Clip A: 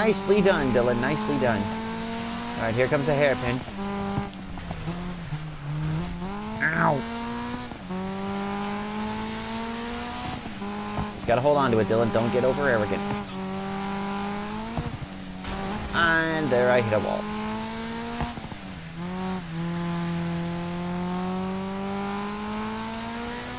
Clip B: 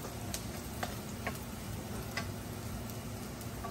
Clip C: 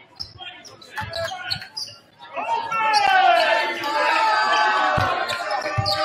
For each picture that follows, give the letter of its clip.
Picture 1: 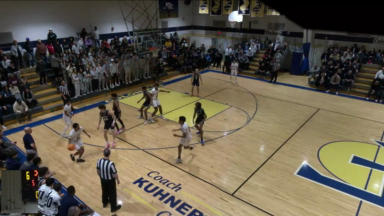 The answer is C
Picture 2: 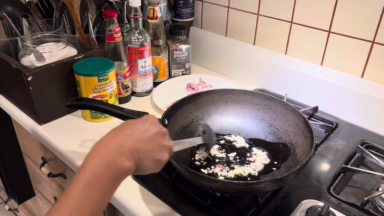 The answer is B